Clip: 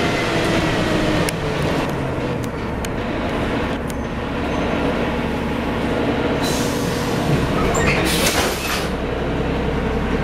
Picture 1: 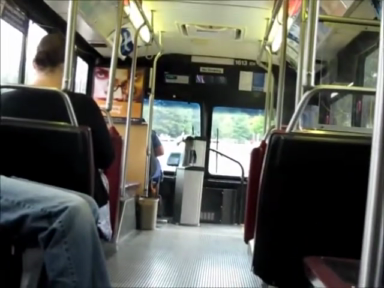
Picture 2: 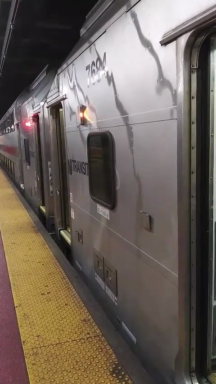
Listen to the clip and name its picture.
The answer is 1